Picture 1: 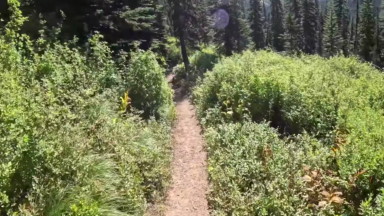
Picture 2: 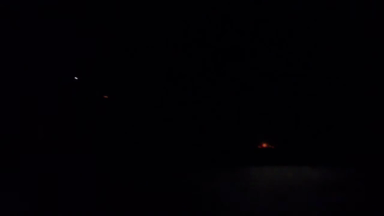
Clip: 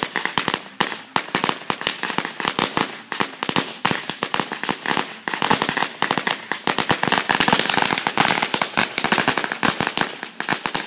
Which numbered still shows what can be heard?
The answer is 2